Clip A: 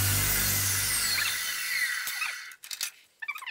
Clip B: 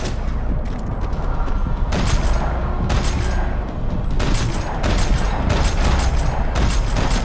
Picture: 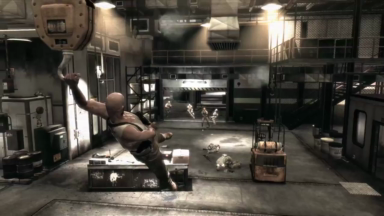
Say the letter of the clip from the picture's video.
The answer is B